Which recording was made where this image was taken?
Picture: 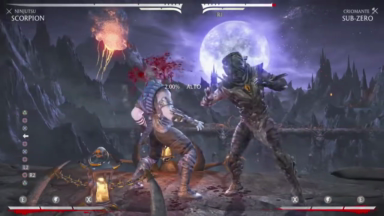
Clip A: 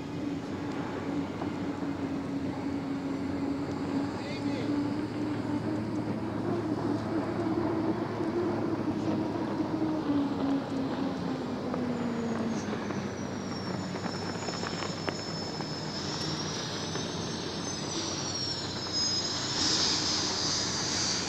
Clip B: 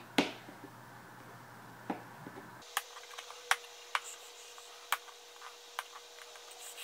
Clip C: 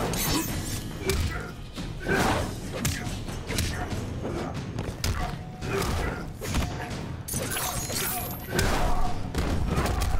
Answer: C